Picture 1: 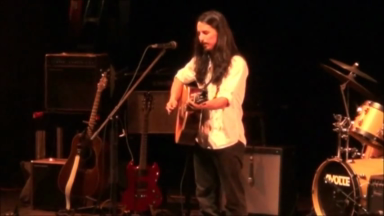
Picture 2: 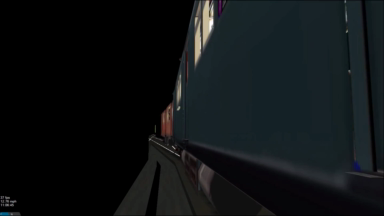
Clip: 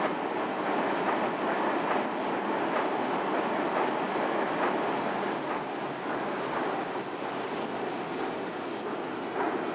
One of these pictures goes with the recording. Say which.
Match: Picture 2